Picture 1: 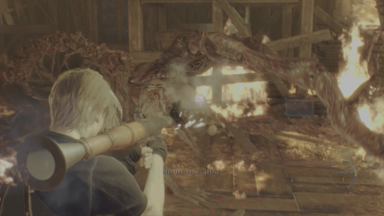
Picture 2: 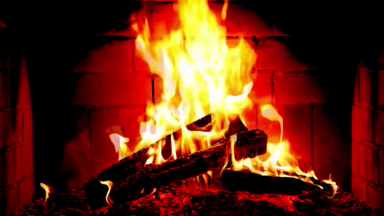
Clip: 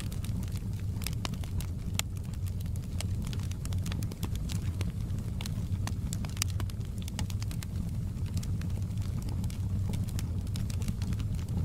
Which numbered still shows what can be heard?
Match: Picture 2